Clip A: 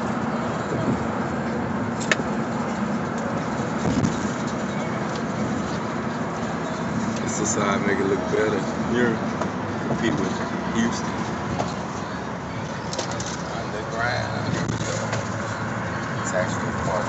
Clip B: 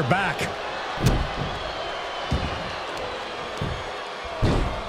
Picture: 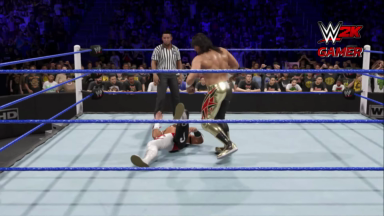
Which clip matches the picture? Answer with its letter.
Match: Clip B